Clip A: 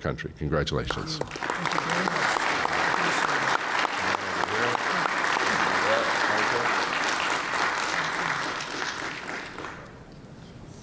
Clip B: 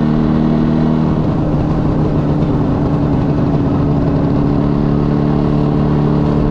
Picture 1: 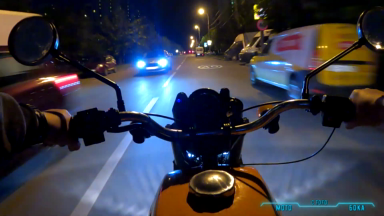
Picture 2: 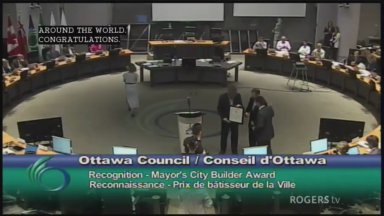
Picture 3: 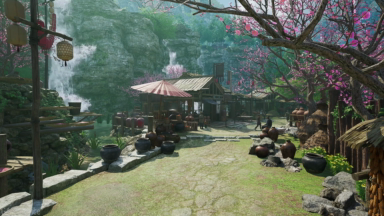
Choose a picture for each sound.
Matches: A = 2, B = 1